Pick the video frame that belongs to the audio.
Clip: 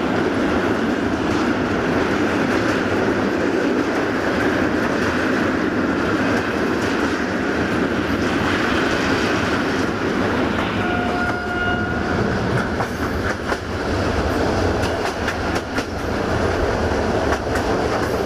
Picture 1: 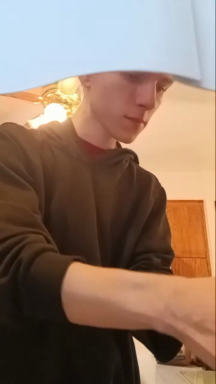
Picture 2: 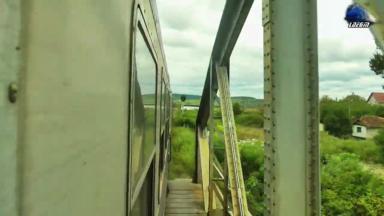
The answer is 2